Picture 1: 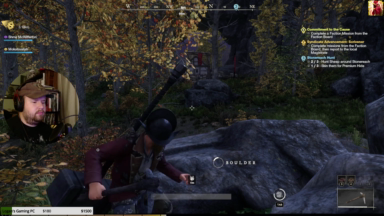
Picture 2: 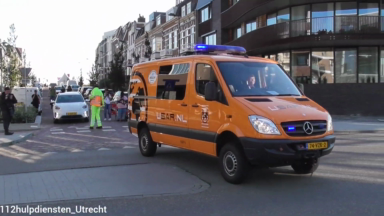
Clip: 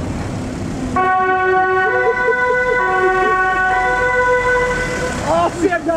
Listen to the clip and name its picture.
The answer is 2